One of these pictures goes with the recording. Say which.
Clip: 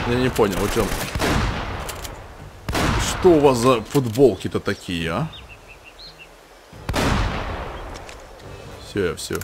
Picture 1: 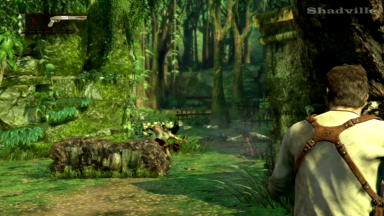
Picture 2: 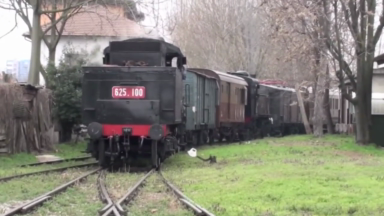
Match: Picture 1